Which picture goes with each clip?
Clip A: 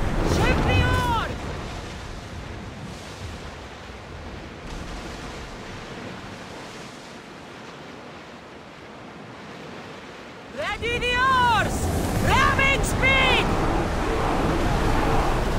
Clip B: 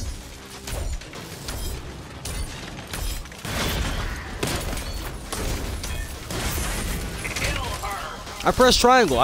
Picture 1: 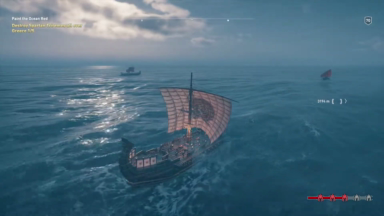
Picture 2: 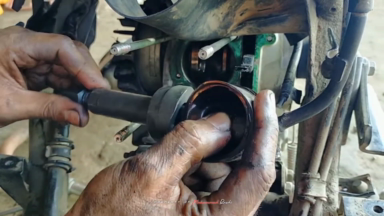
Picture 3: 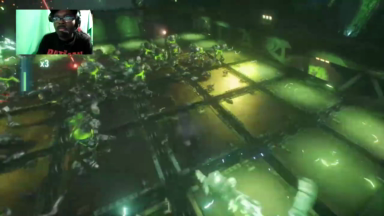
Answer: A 1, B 3